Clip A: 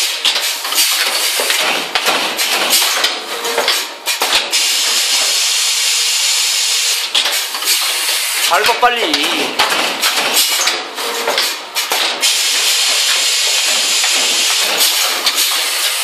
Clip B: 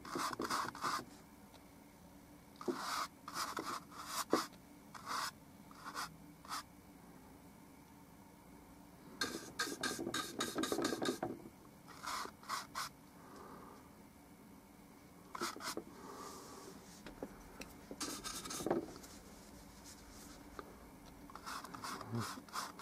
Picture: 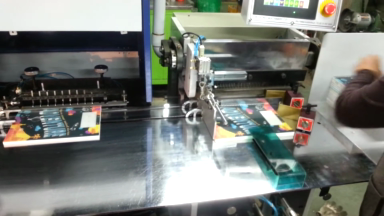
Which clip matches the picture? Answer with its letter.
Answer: A